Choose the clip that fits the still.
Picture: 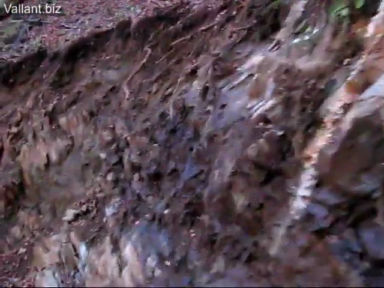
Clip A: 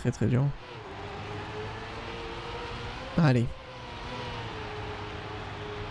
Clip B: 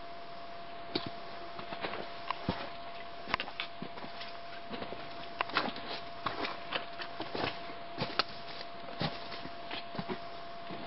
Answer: B